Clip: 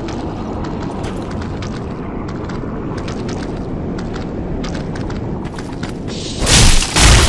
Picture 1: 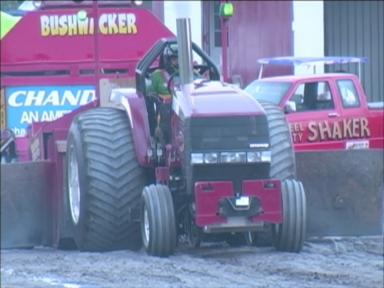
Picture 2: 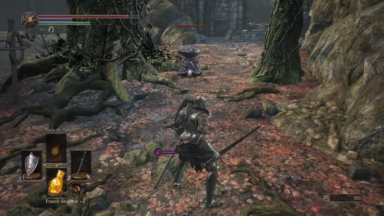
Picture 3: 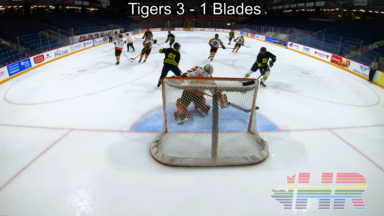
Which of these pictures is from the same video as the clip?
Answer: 2